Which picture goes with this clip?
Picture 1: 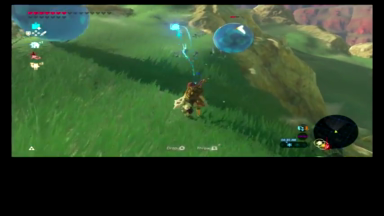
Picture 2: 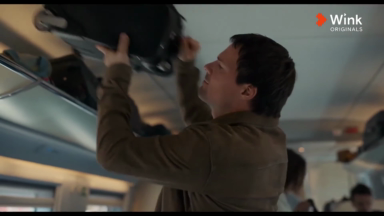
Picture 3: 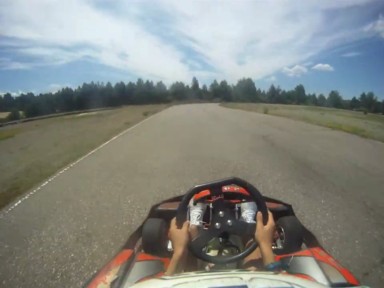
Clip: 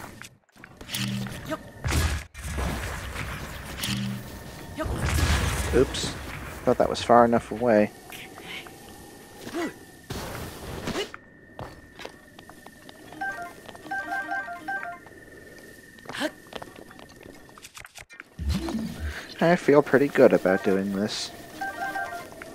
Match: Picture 1